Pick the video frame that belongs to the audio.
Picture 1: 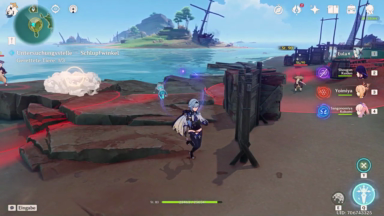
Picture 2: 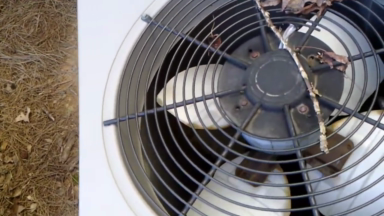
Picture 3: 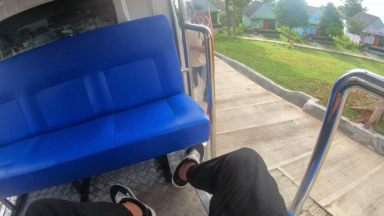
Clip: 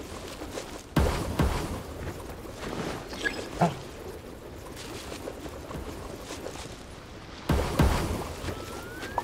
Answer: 1